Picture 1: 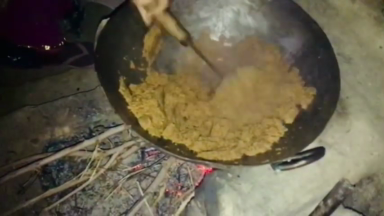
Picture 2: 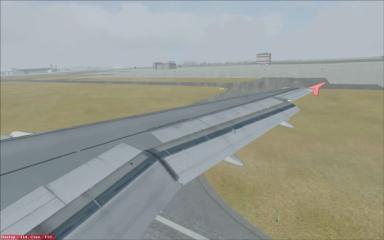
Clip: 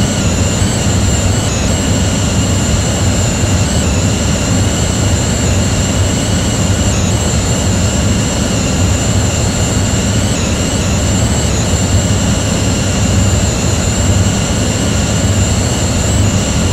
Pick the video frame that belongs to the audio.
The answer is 2